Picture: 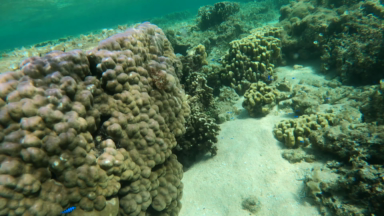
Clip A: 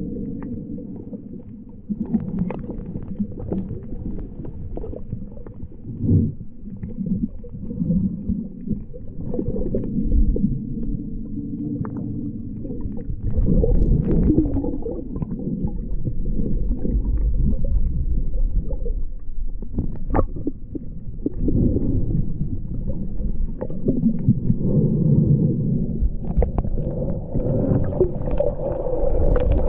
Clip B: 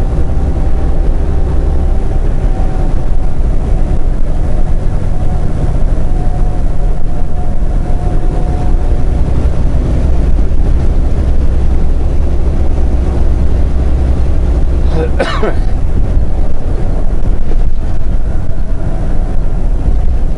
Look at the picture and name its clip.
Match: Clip A